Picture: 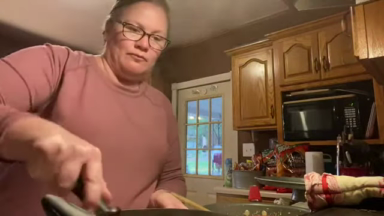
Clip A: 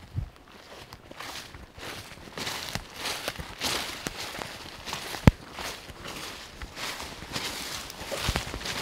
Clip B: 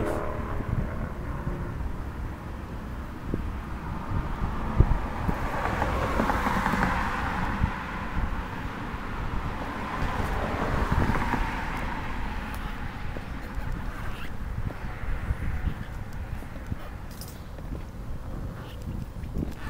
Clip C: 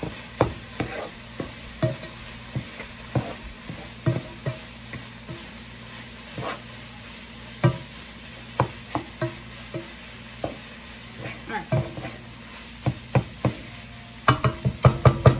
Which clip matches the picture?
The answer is C